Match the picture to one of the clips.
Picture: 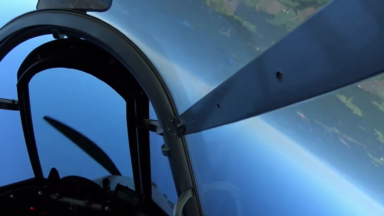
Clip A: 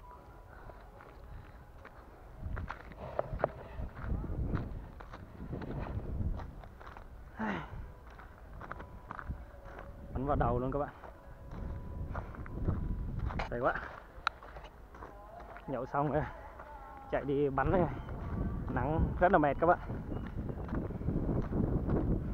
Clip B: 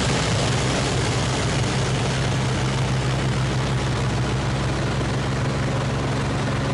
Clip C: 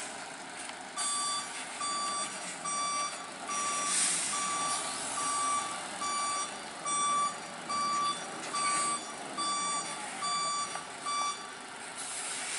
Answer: B